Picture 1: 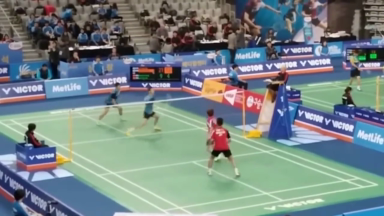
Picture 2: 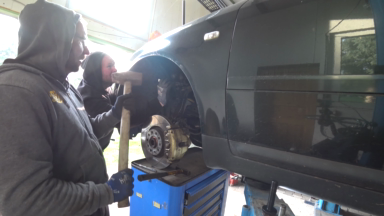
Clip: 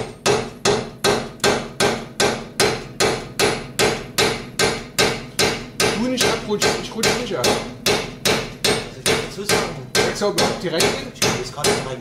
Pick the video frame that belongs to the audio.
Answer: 2